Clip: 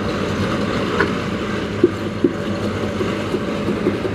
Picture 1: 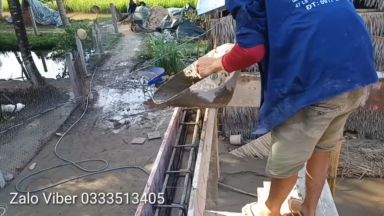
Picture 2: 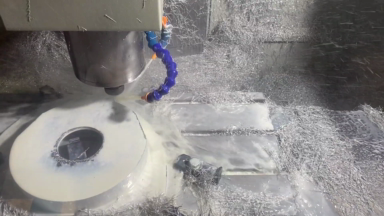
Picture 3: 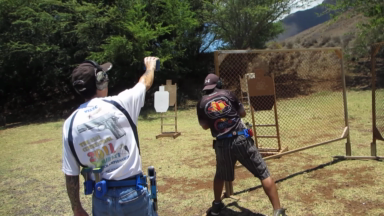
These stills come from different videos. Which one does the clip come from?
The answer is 1